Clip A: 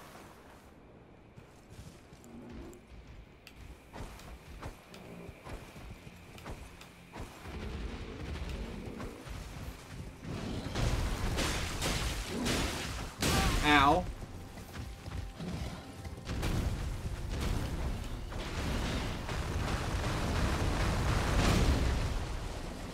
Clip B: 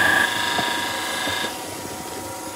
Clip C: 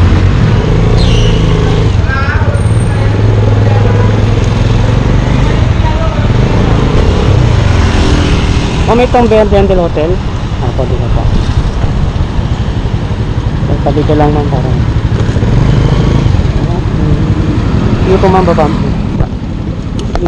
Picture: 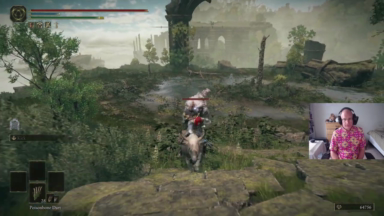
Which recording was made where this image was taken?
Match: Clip A